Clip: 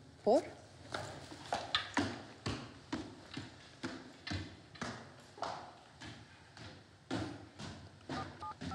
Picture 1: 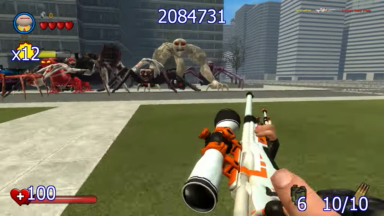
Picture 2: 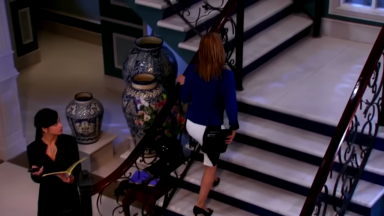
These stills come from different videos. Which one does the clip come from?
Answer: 2